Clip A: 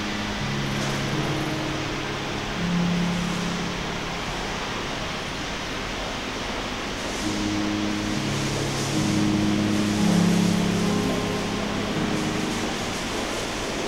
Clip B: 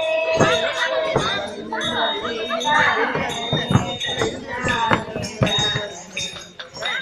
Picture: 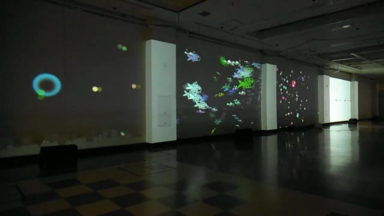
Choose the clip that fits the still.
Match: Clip A